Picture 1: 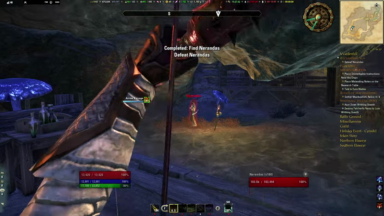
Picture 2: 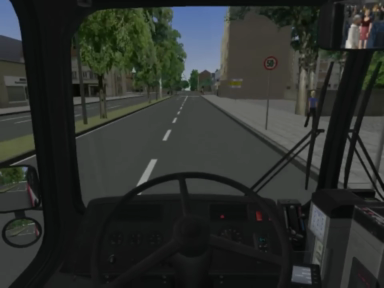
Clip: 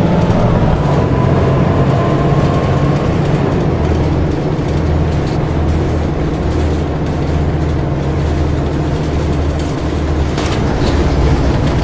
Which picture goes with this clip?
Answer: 2